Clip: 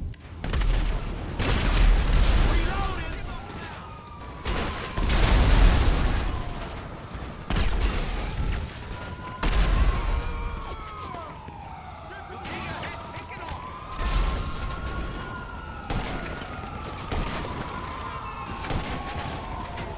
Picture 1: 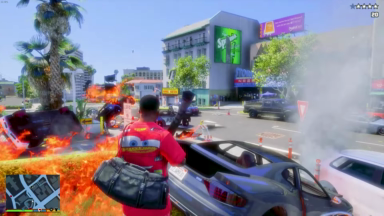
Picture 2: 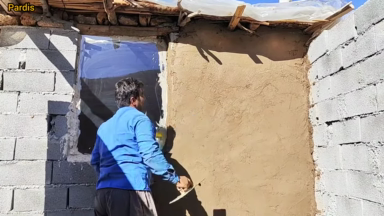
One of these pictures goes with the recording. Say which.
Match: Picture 1